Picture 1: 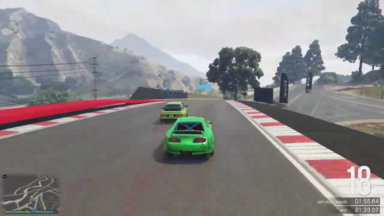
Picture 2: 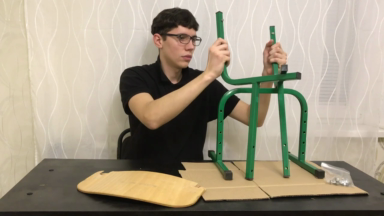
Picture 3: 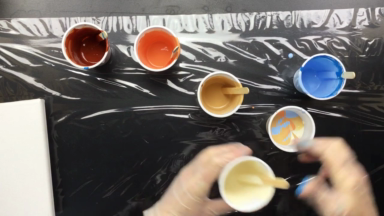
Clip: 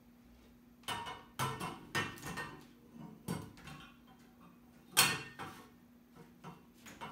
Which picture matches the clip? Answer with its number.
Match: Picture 2